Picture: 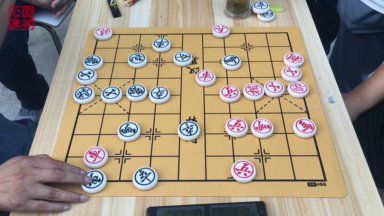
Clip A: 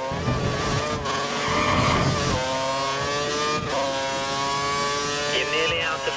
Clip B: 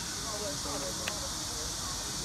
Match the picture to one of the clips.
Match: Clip B